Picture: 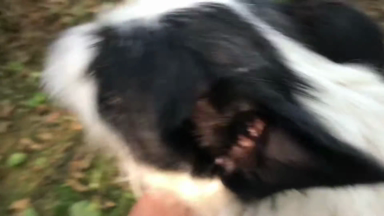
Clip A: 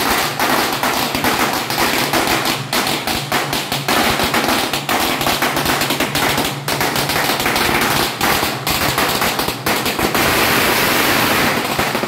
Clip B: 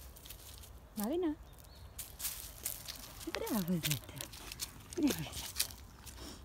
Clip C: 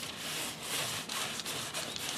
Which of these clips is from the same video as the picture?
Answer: B